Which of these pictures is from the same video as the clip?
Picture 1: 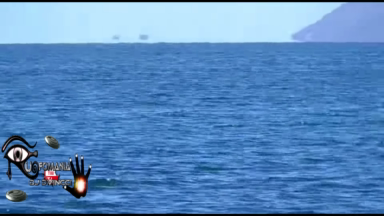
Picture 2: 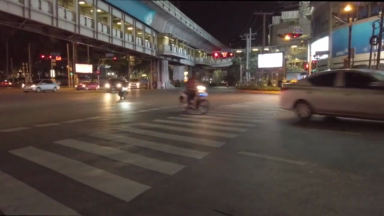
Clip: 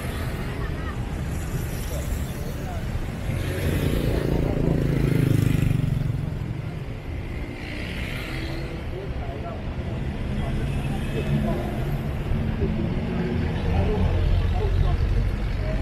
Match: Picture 2